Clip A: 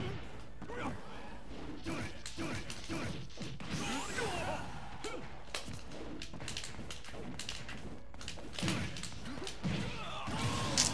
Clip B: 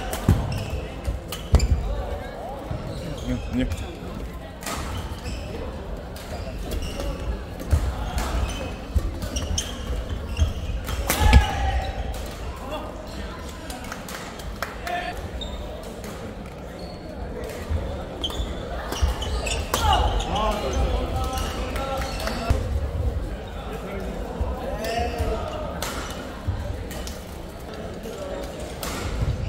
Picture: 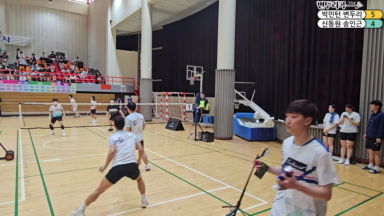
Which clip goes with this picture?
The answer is B